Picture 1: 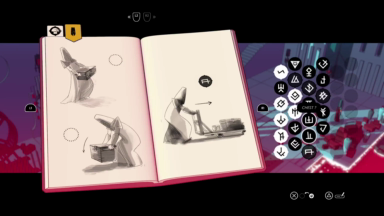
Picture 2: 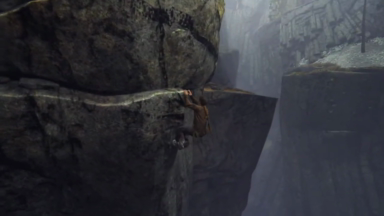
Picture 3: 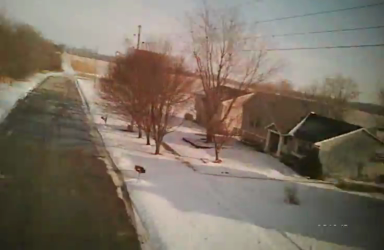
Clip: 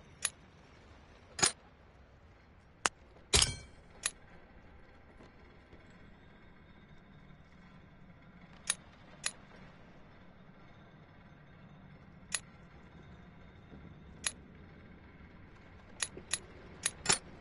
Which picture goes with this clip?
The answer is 1